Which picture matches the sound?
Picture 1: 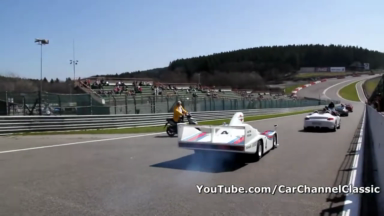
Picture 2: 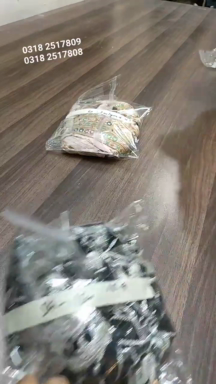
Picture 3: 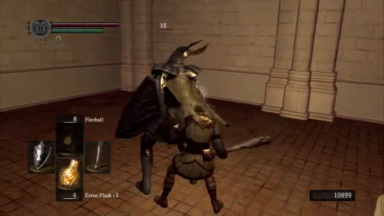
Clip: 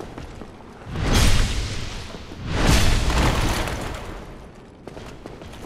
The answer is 3